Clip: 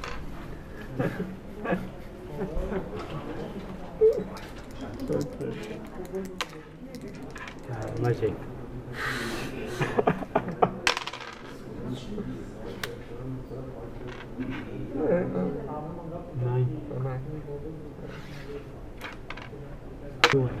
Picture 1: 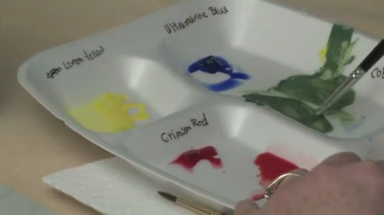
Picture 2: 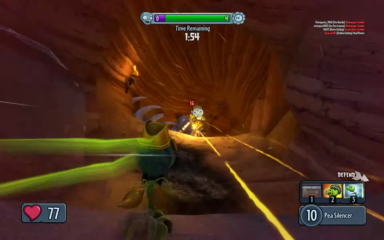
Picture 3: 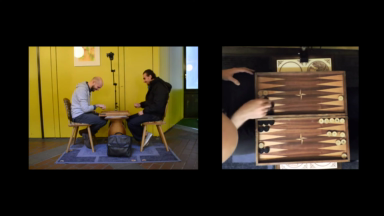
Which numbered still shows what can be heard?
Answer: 3